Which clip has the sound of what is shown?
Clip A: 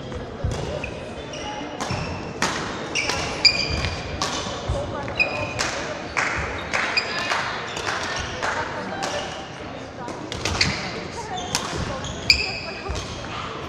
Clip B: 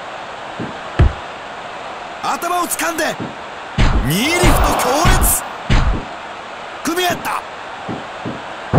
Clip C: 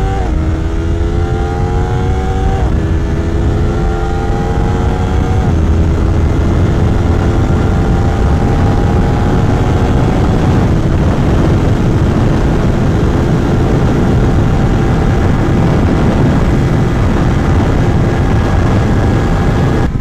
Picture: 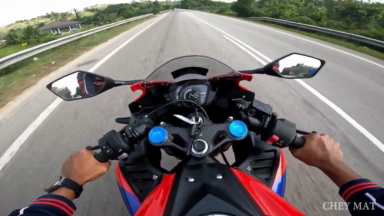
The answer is C